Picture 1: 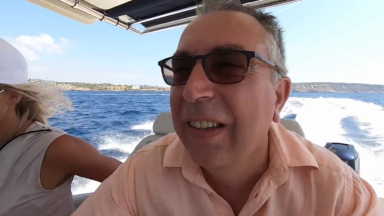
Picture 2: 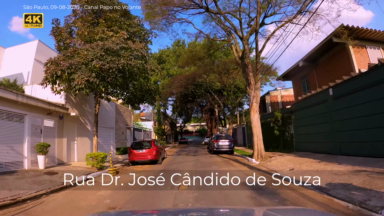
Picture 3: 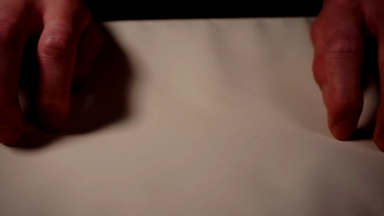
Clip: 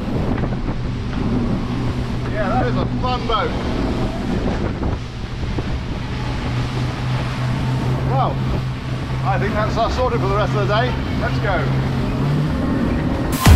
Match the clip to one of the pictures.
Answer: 1